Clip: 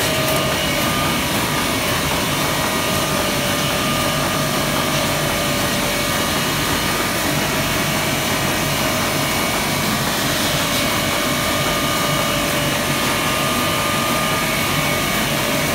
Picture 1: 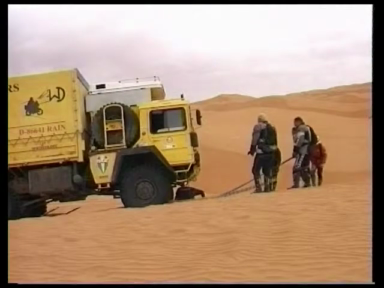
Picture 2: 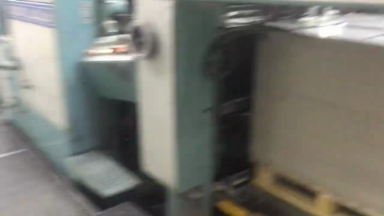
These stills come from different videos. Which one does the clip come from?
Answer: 2